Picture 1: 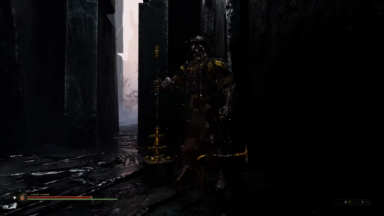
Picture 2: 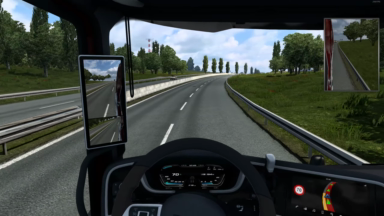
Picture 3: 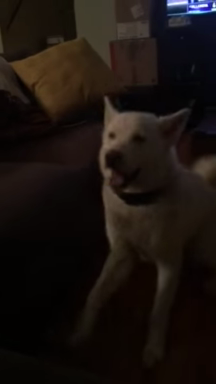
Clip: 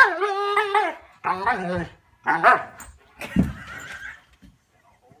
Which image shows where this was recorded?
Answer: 3